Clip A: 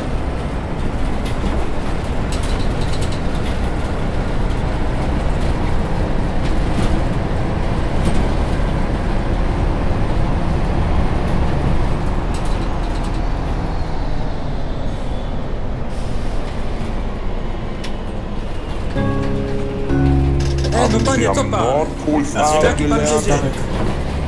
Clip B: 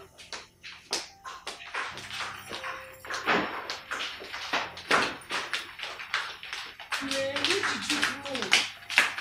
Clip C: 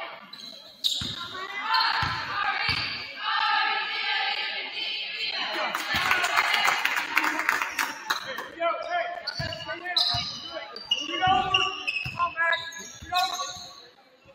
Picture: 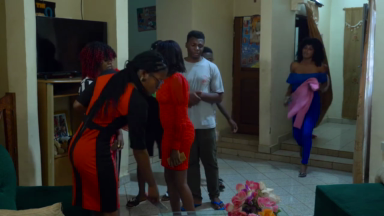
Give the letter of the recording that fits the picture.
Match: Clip B